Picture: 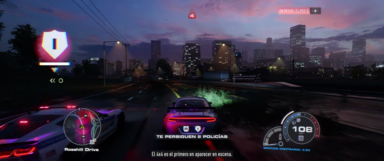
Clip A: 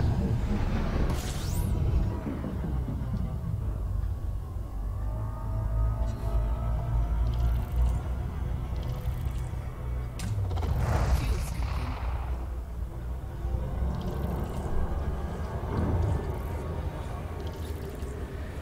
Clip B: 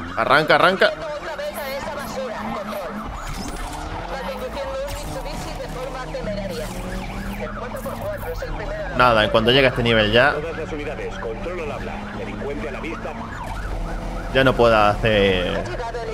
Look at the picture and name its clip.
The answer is B